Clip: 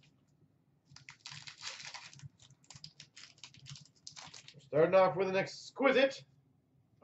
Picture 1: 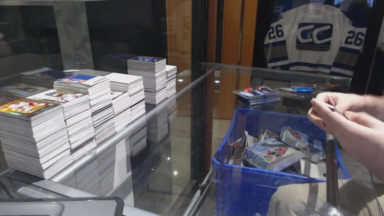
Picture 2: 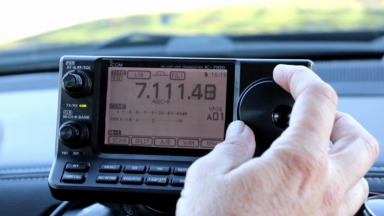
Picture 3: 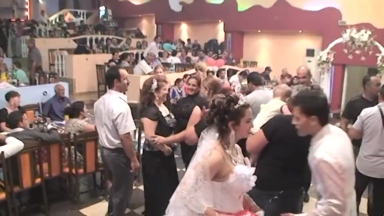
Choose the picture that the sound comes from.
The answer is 1